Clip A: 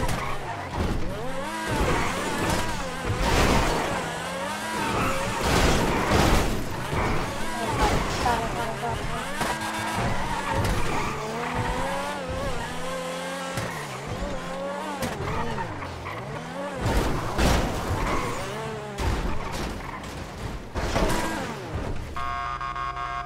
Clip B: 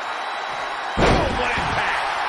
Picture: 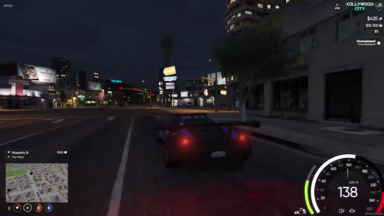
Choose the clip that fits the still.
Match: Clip A